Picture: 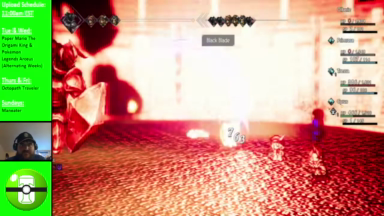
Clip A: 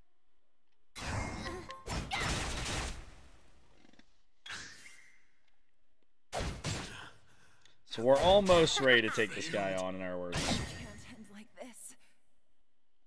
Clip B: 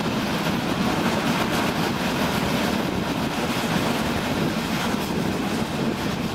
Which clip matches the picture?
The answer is A